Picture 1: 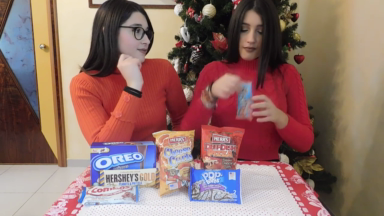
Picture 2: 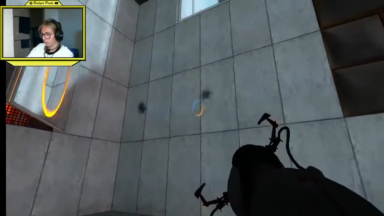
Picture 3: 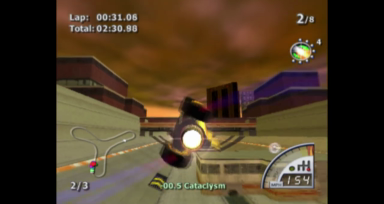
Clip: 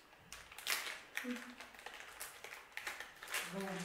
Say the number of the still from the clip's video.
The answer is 1